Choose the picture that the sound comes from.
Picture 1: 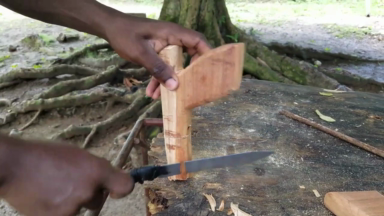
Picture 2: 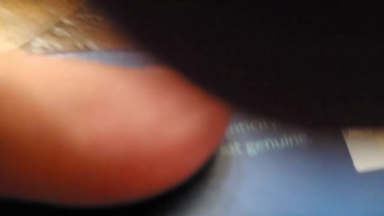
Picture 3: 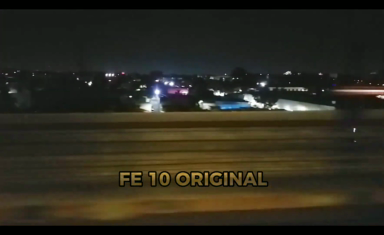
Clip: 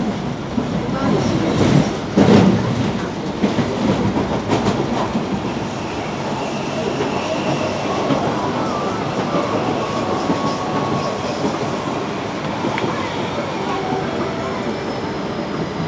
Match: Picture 3